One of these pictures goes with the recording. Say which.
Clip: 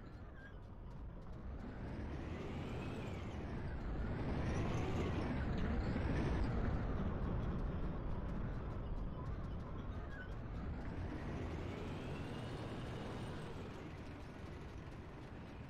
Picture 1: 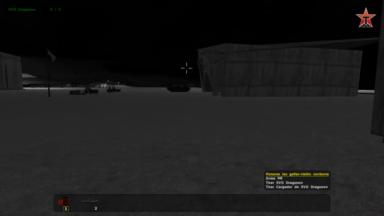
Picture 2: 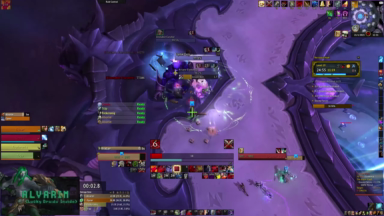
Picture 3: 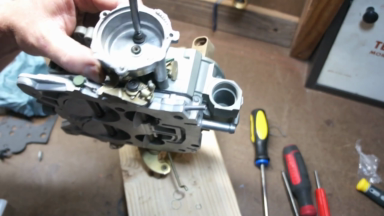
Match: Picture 1